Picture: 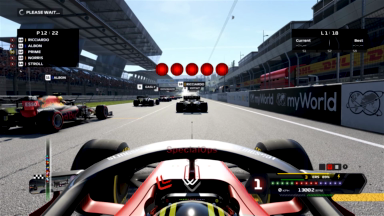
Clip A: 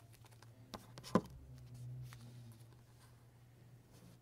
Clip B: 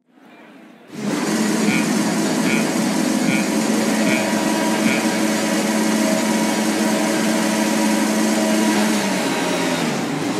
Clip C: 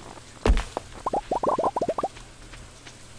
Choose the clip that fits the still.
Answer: B